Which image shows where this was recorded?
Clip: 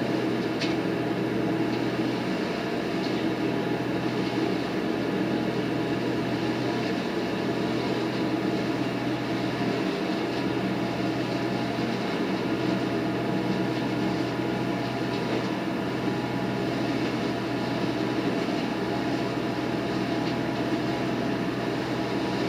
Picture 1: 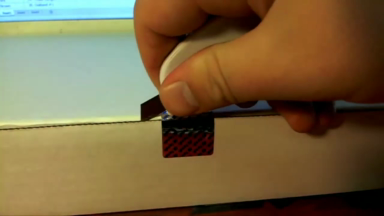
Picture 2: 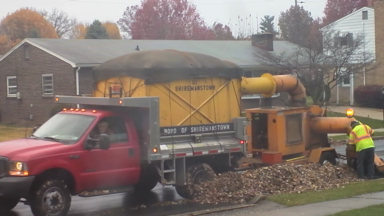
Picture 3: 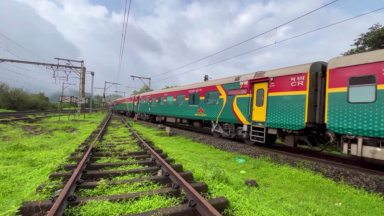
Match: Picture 2